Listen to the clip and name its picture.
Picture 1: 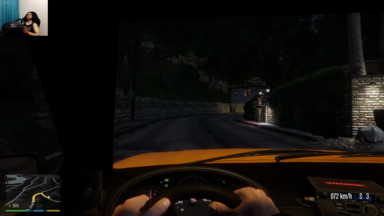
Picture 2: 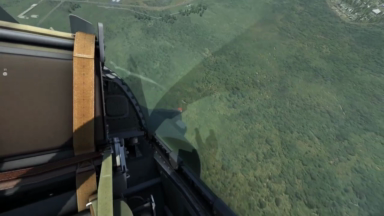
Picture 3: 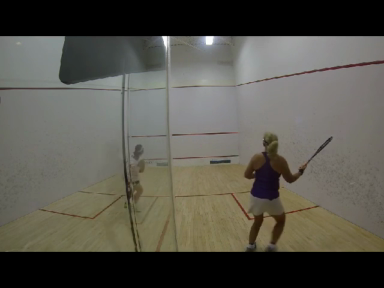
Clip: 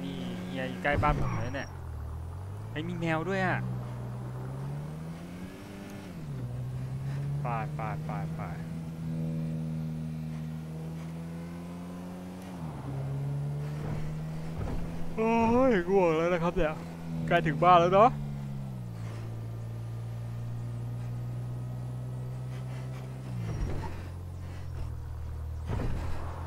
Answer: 1